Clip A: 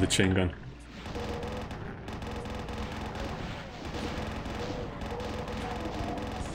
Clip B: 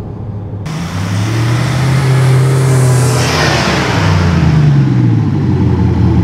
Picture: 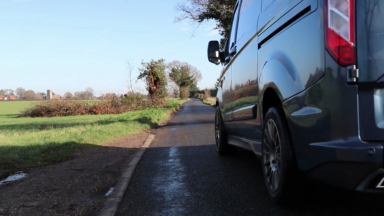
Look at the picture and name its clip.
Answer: B